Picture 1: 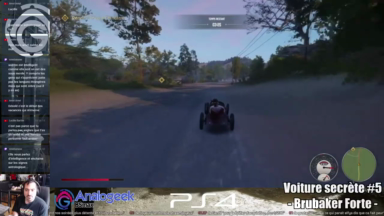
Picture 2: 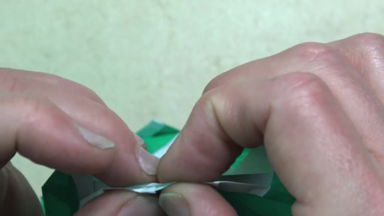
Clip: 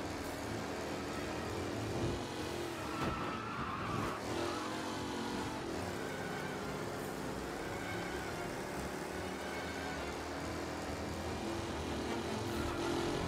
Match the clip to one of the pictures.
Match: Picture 1